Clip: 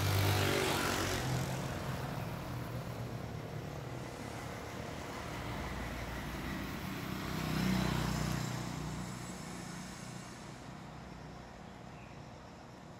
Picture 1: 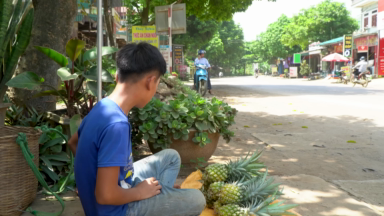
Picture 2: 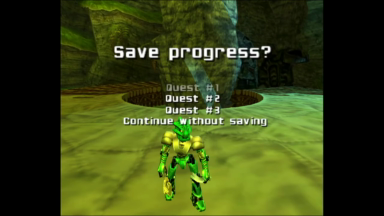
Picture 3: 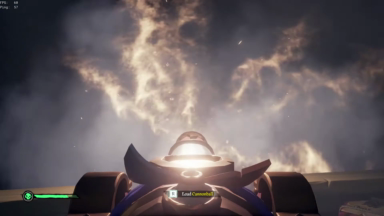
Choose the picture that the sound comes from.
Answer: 1